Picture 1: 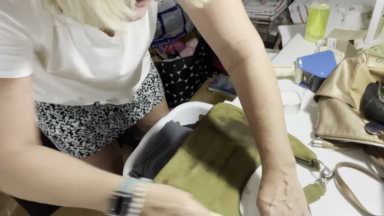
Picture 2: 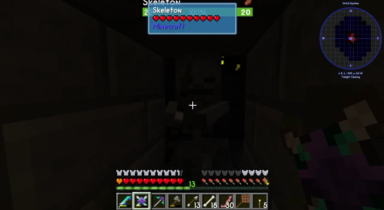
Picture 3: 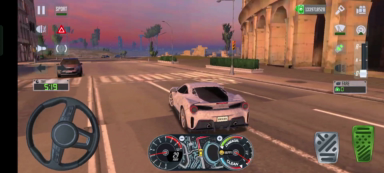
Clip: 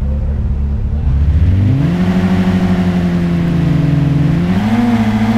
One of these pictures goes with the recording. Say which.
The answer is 3